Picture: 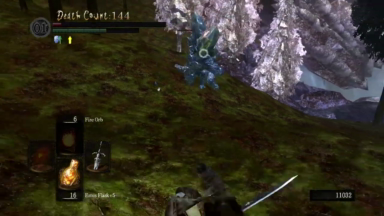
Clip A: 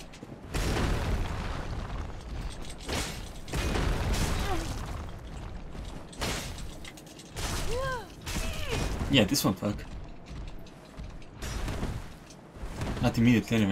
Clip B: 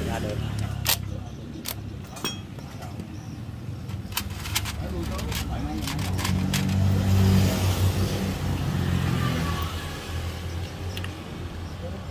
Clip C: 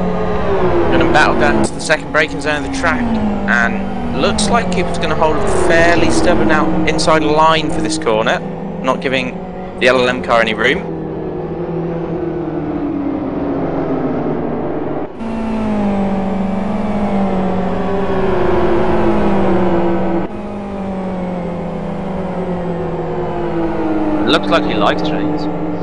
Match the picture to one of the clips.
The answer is A